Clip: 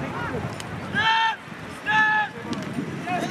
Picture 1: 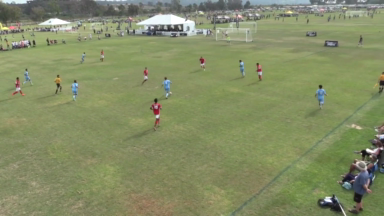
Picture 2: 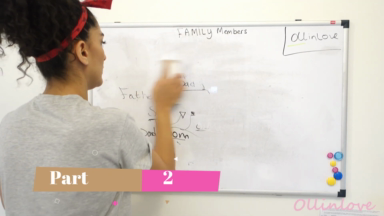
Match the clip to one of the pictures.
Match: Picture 1